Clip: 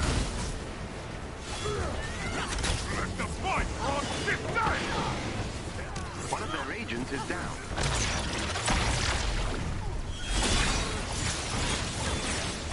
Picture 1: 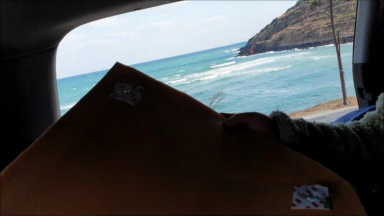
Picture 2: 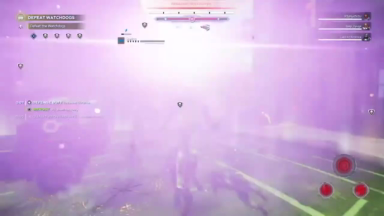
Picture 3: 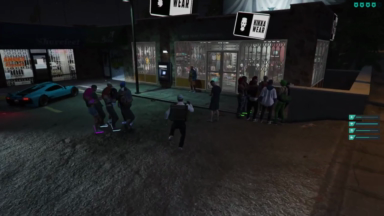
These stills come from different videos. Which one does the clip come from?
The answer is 2